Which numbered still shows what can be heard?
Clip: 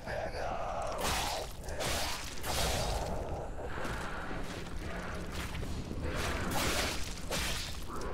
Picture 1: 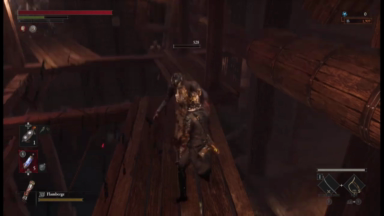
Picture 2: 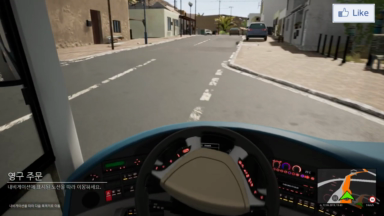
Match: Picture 1